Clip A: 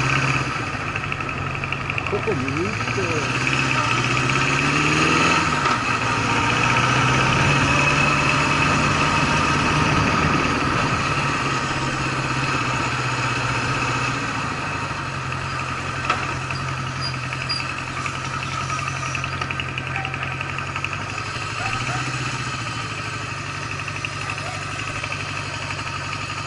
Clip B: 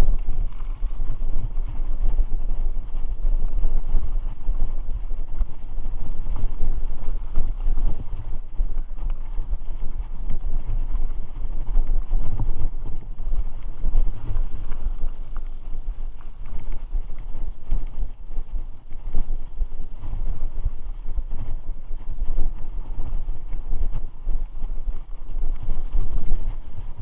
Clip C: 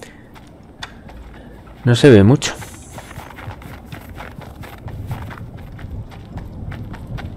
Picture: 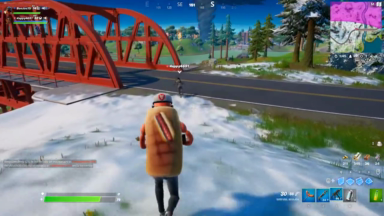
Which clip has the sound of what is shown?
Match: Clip C